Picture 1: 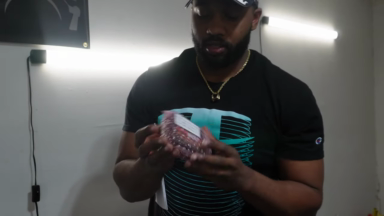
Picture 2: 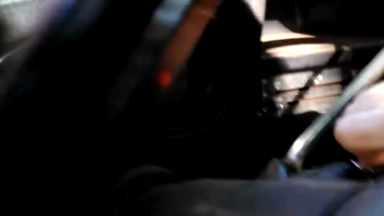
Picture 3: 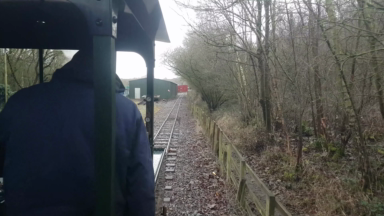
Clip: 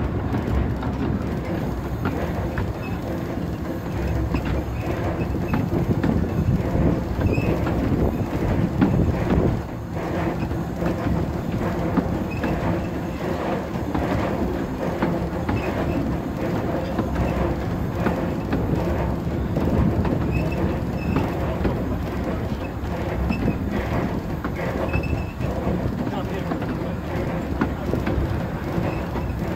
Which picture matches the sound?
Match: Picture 3